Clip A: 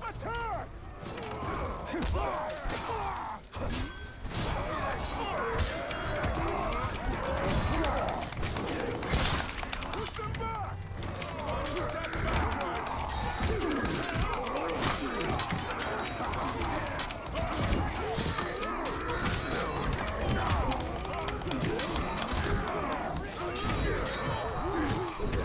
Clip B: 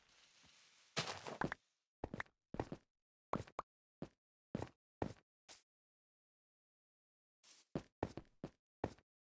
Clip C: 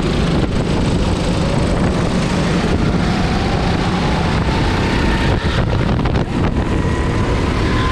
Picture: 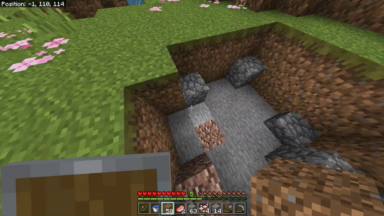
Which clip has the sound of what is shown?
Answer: B